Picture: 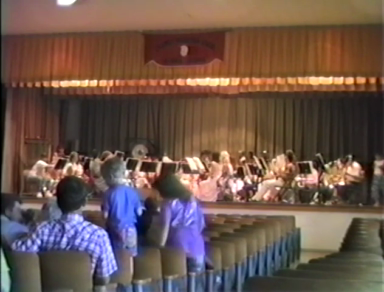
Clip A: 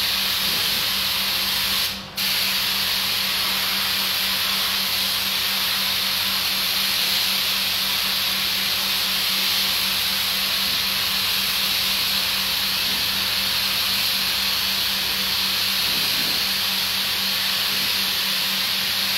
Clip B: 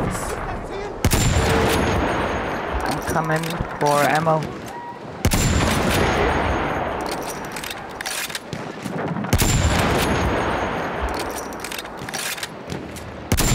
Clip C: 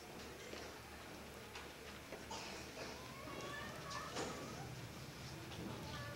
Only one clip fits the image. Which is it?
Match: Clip C